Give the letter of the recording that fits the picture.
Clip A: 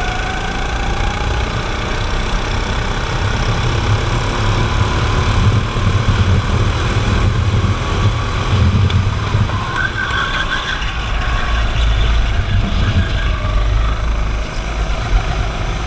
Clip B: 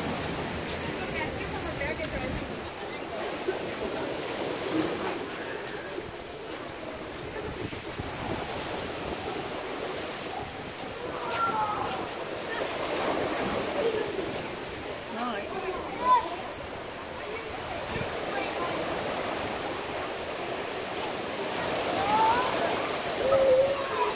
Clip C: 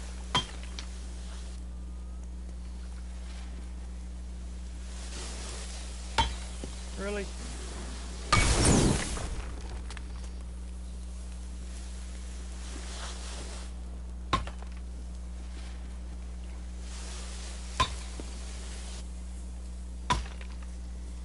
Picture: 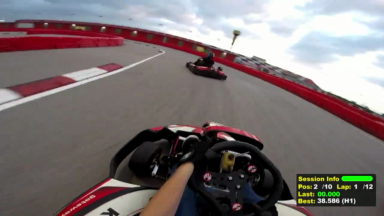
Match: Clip A